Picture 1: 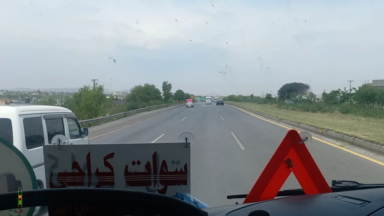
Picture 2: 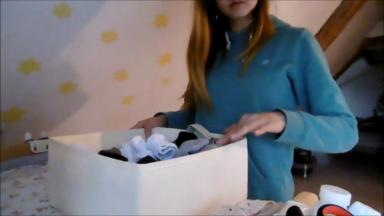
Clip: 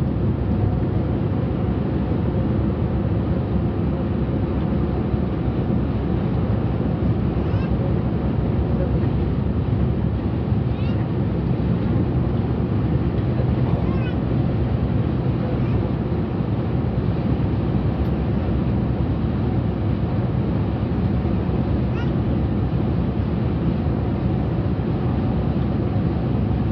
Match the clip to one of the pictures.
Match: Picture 1